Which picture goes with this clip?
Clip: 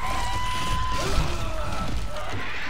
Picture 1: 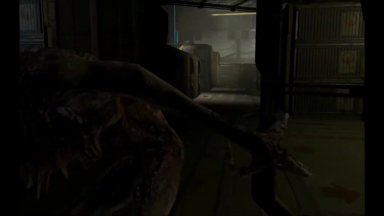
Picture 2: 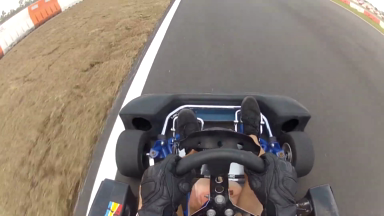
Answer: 1